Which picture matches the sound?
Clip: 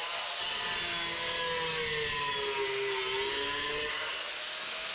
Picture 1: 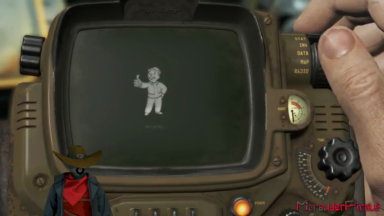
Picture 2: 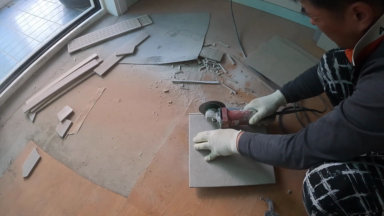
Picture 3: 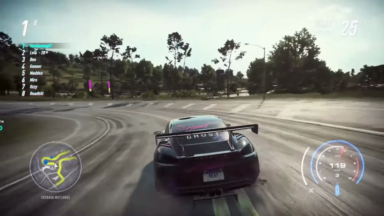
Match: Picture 2